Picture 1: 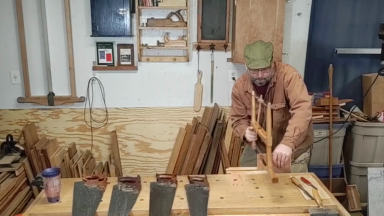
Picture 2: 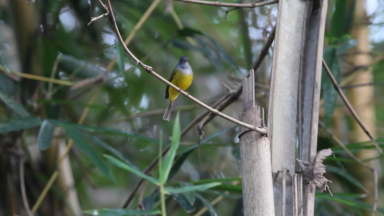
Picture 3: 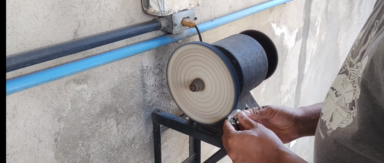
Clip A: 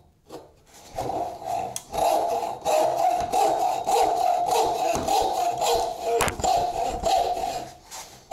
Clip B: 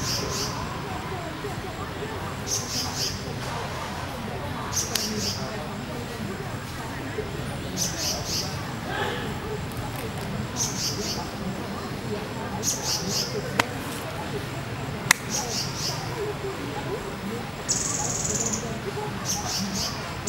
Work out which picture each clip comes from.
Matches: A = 1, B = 2